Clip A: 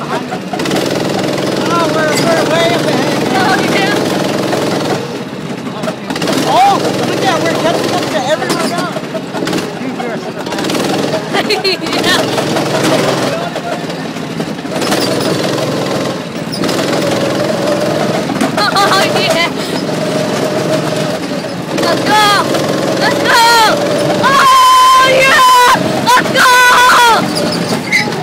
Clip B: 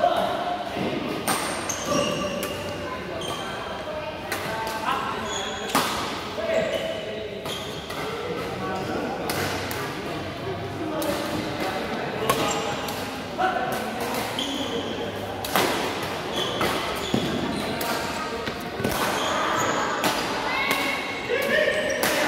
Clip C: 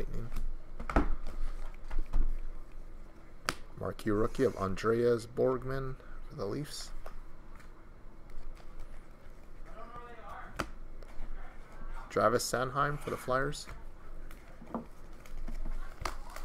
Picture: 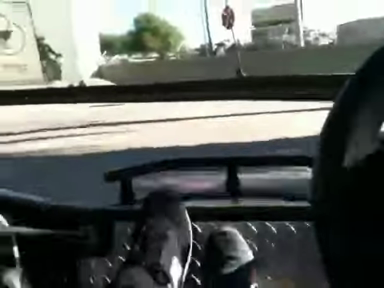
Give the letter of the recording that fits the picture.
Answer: A